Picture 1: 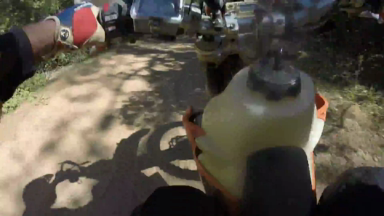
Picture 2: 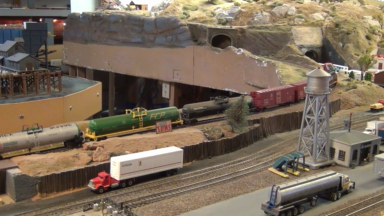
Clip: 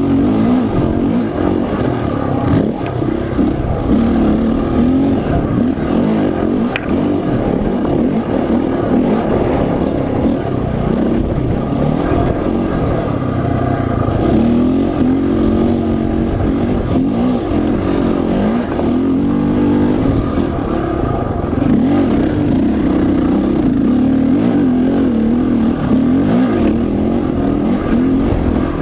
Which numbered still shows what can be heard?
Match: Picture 1